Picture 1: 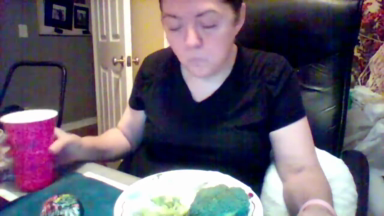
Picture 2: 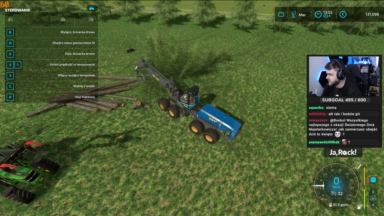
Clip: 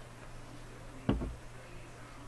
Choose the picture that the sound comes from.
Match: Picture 1